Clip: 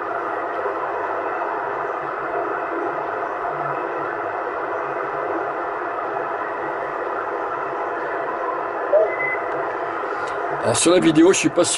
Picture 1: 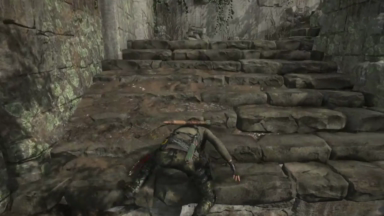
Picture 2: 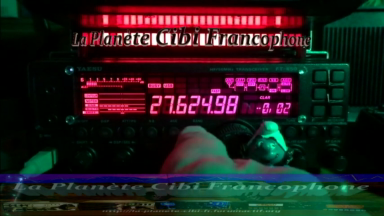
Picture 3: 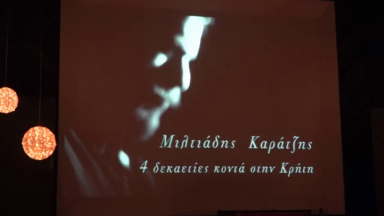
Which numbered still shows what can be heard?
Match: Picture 2